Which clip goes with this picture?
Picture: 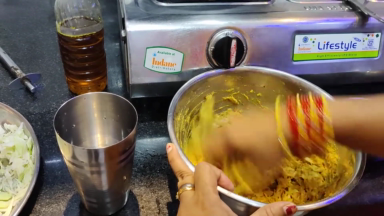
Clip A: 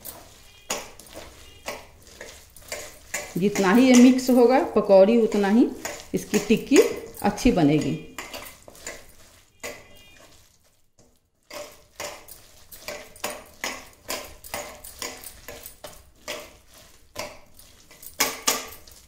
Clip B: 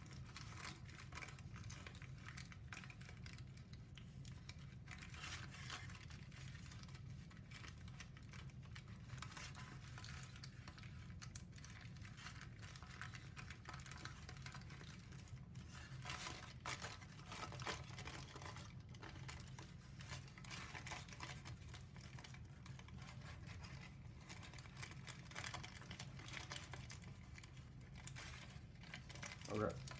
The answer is A